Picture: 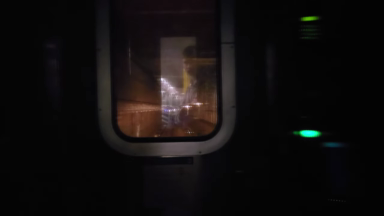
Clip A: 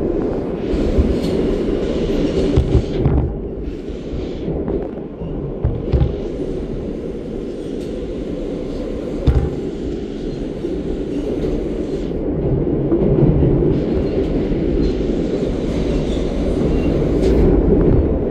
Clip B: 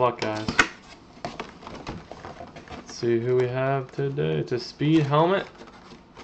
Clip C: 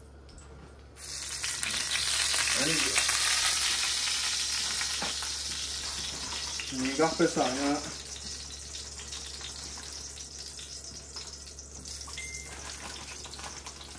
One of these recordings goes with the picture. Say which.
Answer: A